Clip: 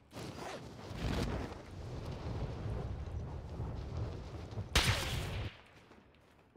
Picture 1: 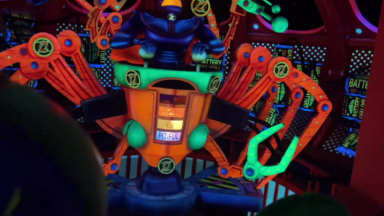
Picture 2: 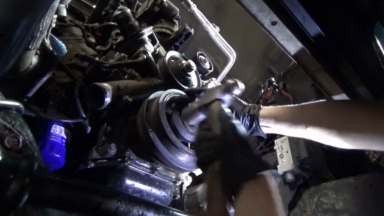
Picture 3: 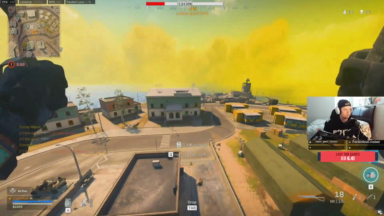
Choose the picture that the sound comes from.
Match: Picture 3